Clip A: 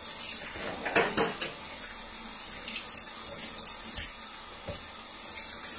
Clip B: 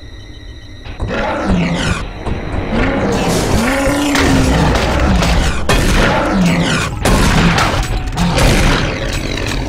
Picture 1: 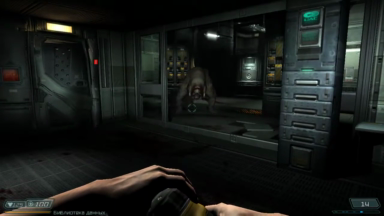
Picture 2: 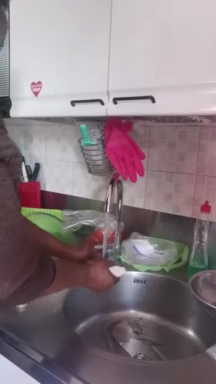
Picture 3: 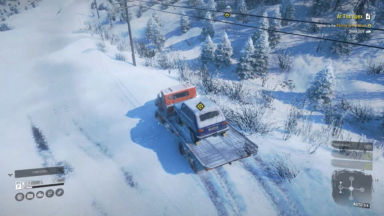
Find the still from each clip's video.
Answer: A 2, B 1